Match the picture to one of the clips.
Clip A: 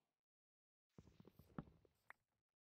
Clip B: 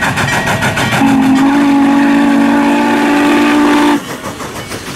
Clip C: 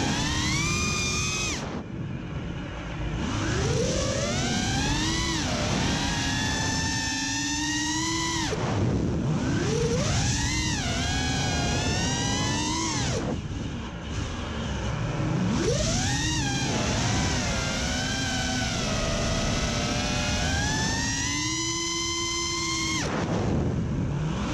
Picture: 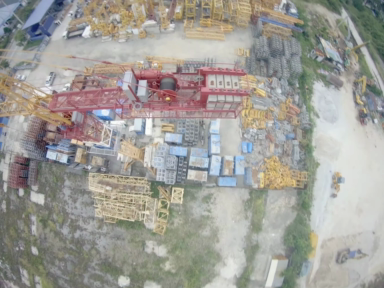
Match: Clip C